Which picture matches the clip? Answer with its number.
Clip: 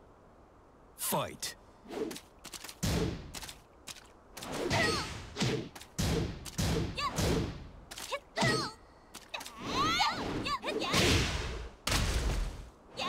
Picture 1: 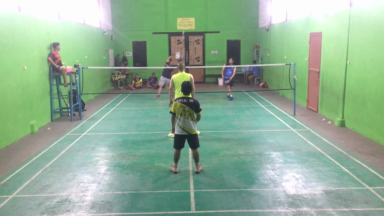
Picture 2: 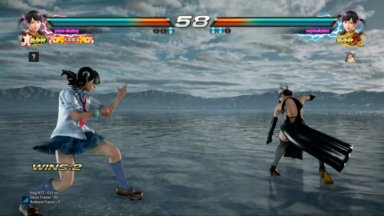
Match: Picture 2